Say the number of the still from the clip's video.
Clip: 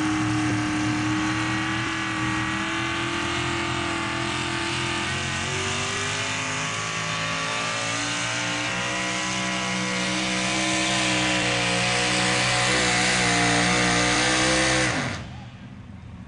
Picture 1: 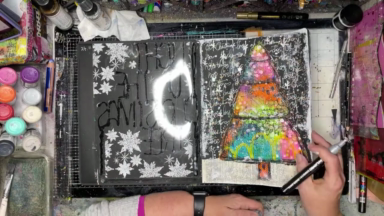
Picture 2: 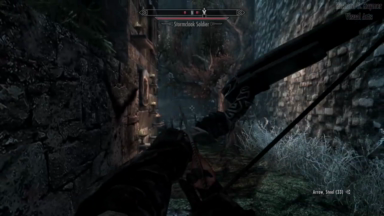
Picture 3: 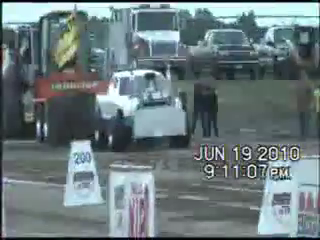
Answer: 3